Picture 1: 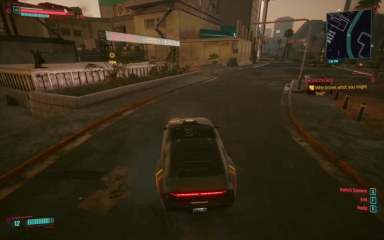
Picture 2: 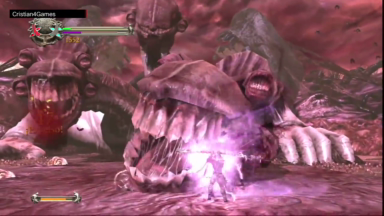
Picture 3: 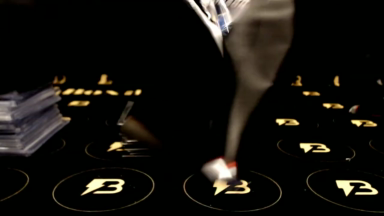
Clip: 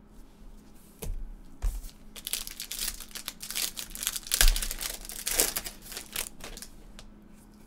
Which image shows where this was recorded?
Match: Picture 3